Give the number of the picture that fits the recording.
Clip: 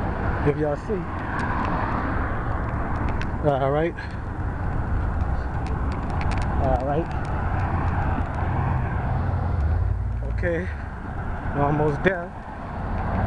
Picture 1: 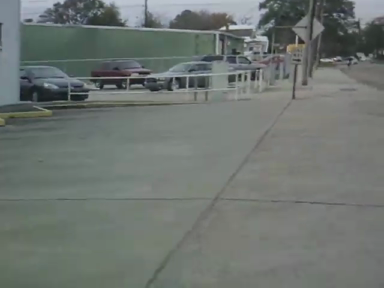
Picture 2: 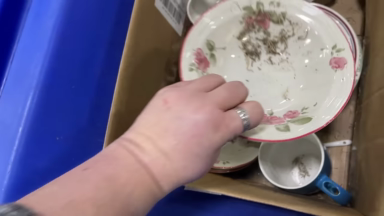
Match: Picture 1